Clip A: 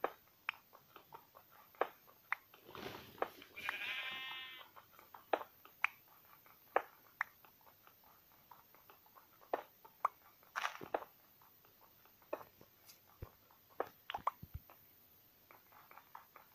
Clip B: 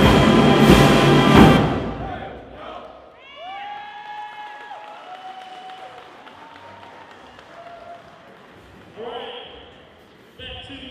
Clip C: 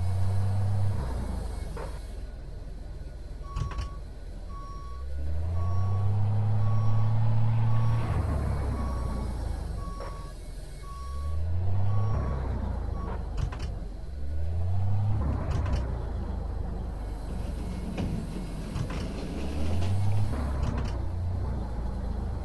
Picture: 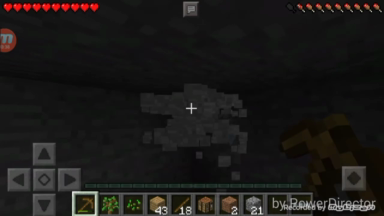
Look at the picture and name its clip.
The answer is A